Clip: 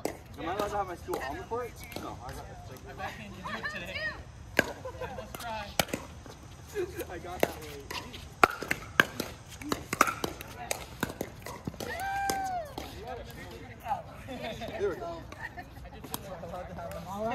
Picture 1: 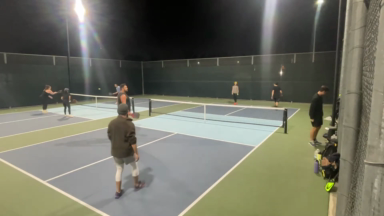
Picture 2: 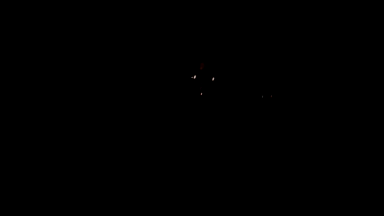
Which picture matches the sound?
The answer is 1